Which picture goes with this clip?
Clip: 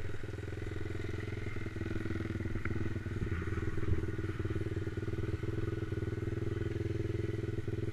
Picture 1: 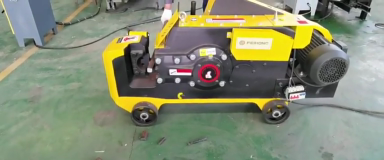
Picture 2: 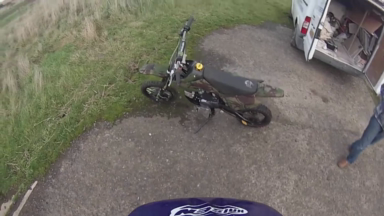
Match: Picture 2